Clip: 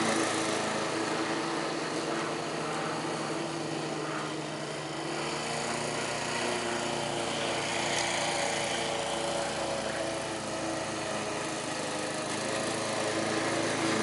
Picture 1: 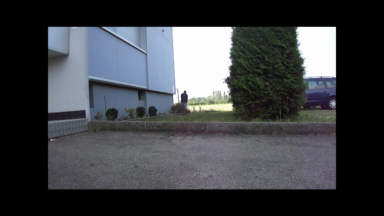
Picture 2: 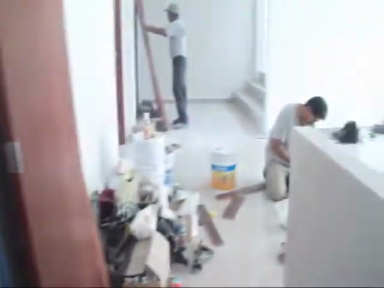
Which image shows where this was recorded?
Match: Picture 1